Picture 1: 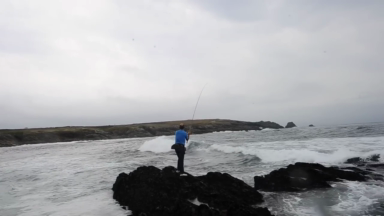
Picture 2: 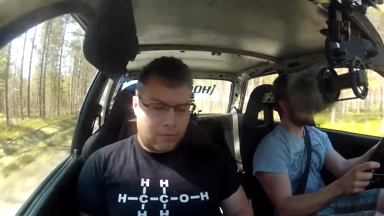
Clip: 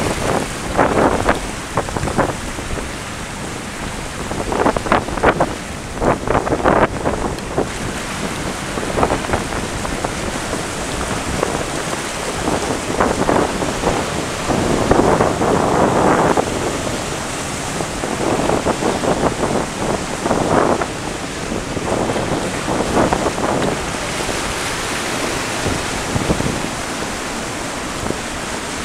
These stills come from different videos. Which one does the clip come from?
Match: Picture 1